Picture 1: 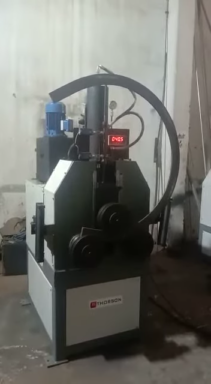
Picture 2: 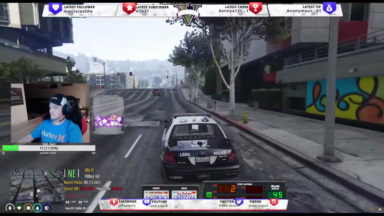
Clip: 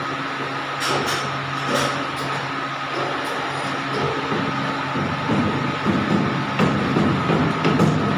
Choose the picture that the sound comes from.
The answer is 1